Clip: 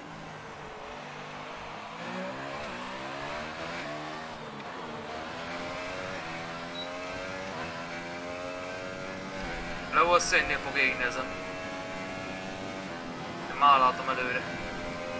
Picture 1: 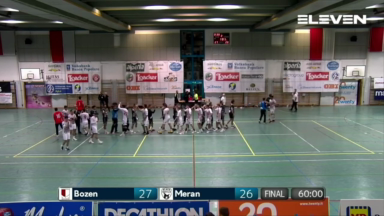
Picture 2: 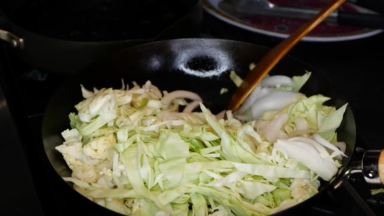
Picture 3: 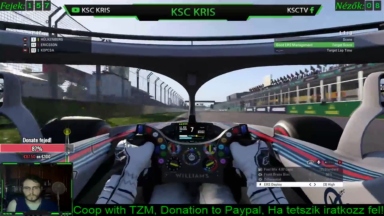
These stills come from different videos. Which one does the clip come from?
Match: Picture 3